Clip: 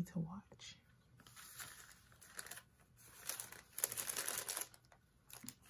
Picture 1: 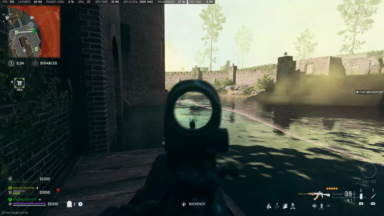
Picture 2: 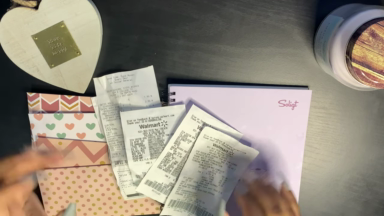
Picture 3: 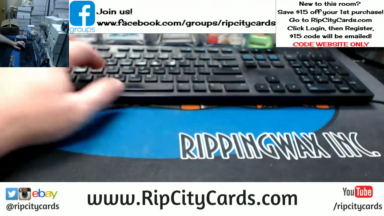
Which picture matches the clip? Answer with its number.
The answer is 2